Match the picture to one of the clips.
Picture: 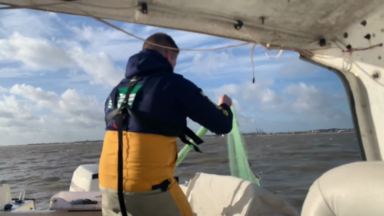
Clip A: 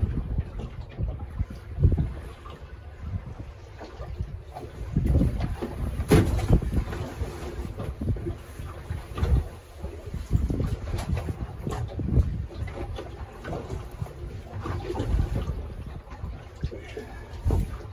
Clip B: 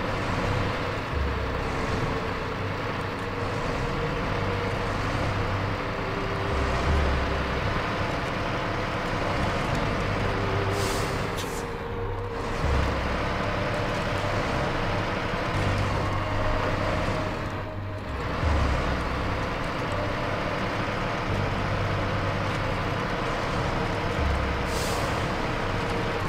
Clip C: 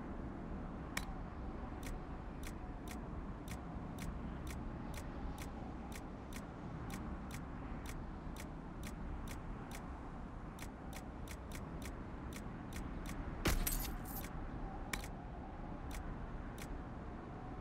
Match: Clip A